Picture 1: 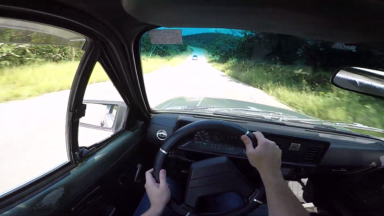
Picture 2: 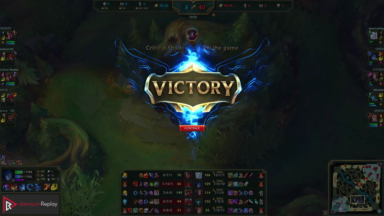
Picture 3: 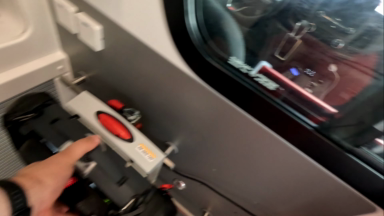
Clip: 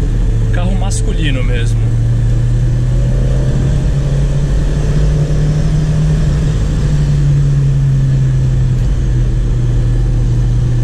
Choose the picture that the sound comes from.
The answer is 1